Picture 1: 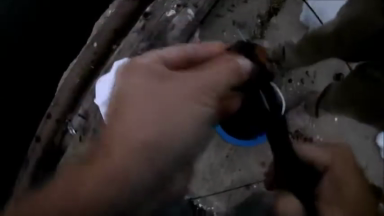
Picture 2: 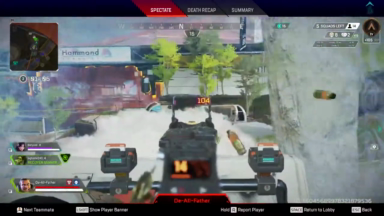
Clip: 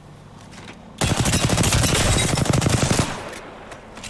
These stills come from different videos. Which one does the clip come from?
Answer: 2